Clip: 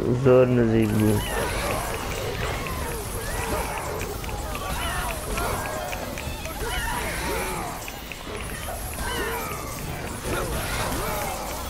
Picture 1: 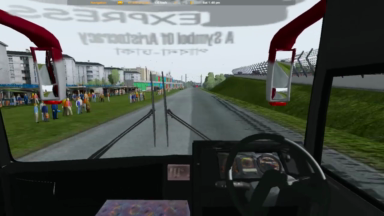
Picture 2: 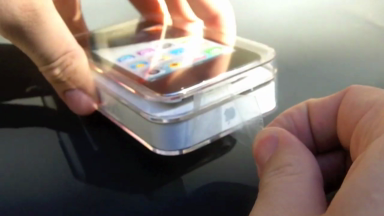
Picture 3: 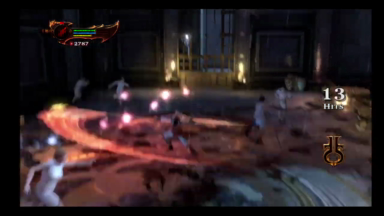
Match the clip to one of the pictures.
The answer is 3